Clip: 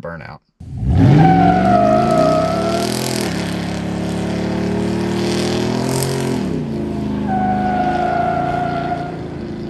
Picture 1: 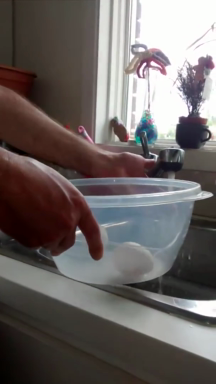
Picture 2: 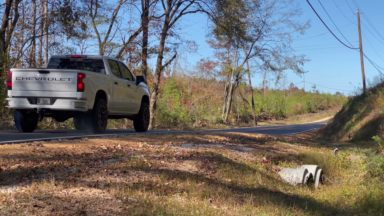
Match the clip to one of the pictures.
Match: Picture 2